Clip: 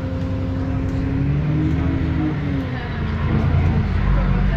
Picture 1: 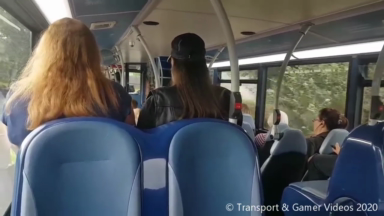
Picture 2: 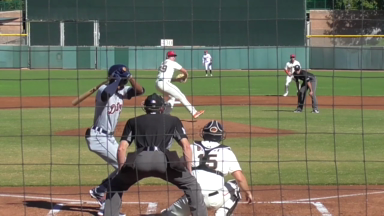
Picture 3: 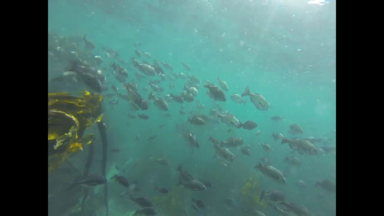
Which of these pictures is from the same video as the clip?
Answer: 1